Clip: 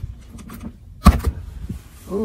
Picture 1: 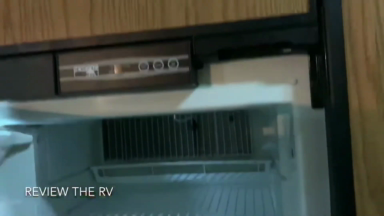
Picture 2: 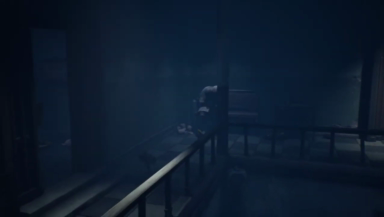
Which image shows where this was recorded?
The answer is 1